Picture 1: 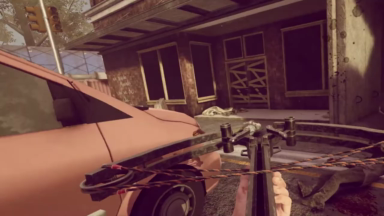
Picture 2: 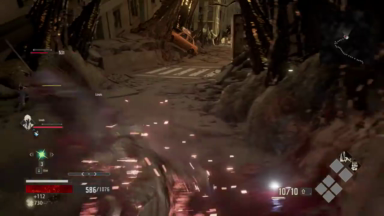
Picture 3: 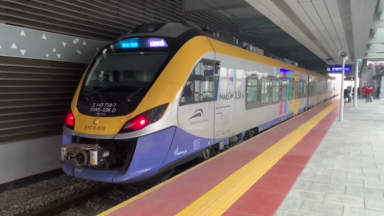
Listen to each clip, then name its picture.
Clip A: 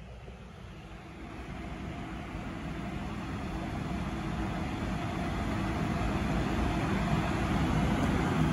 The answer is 3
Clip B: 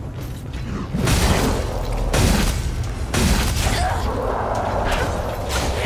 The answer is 2